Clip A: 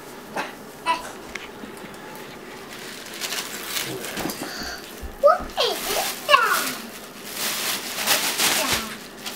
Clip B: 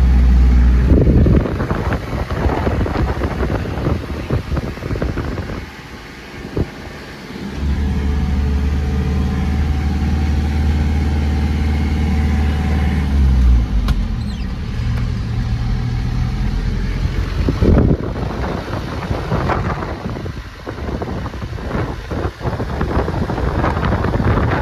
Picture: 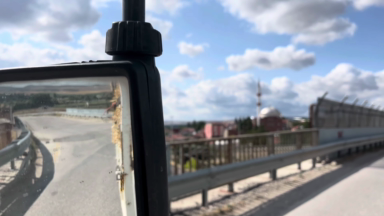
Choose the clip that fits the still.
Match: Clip B